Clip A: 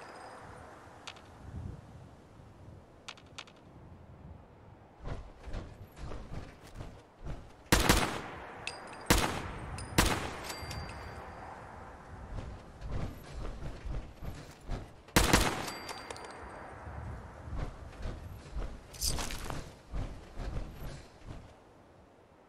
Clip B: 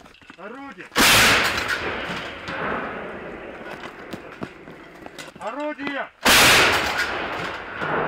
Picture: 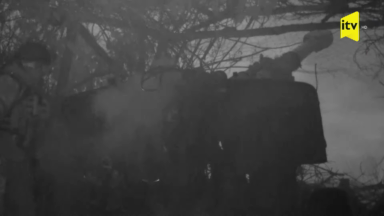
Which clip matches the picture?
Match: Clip B